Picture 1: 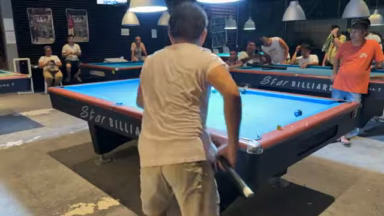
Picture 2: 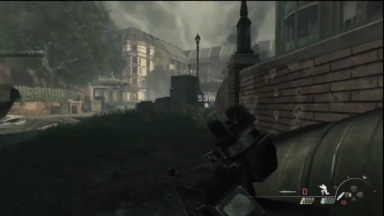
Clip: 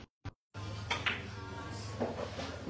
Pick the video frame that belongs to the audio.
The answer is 1